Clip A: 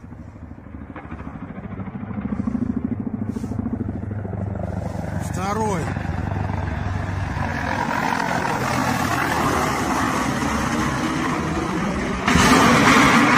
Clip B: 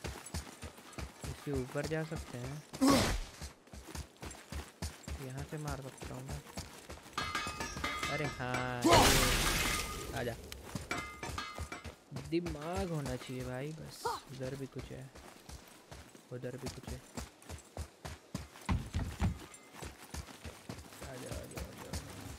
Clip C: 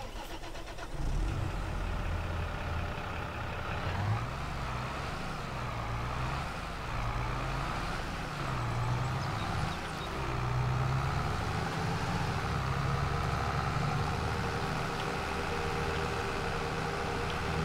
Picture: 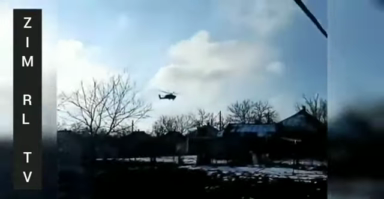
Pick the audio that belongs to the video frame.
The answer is A